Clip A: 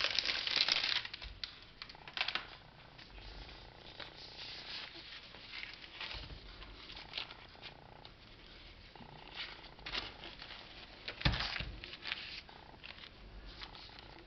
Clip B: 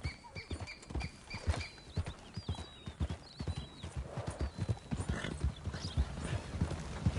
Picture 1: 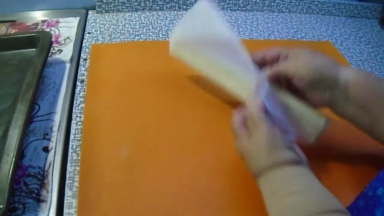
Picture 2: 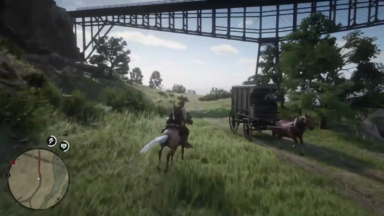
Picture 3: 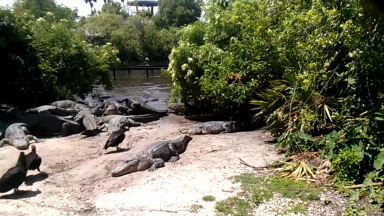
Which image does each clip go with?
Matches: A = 1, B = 2